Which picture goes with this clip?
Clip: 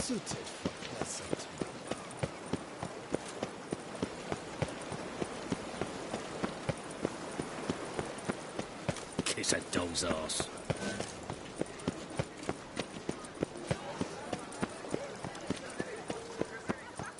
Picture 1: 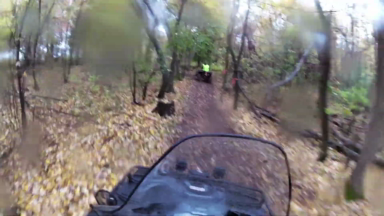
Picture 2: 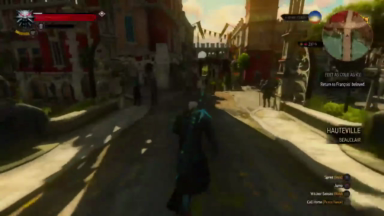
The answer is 2